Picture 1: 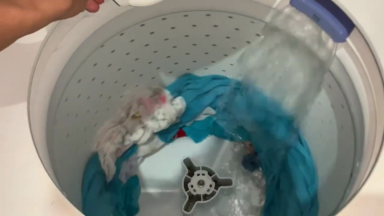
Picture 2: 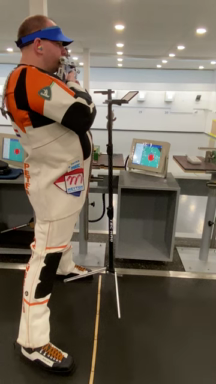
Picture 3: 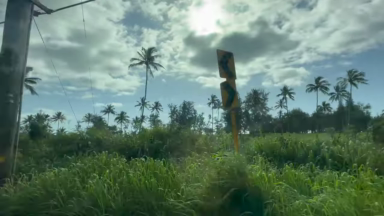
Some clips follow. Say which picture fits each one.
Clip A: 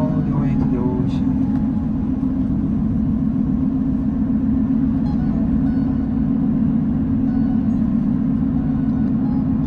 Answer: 3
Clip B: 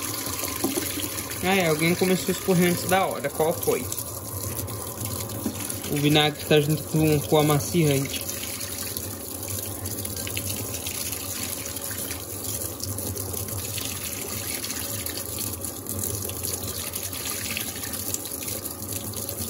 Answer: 1